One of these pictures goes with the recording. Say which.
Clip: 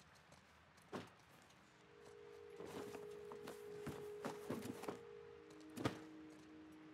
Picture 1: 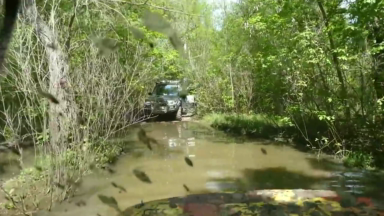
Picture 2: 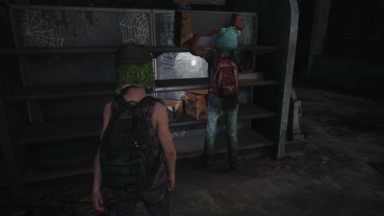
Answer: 2